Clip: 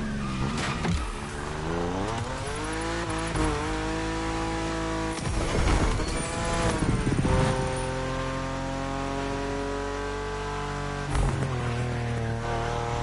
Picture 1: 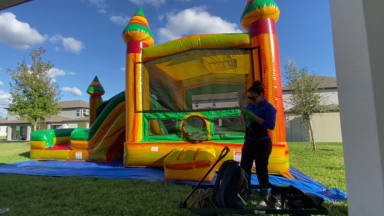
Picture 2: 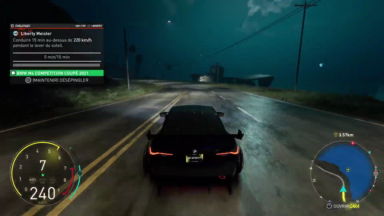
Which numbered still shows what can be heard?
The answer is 2